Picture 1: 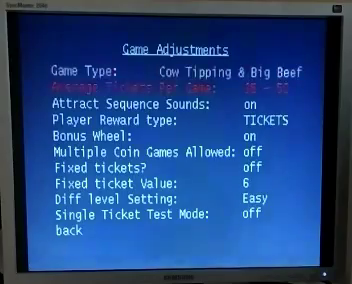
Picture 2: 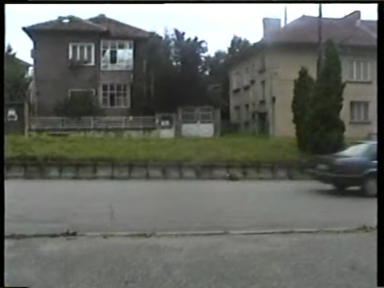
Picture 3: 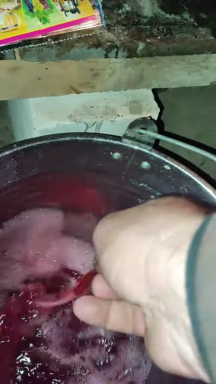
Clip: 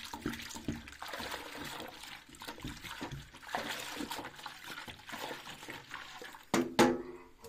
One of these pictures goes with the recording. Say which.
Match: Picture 3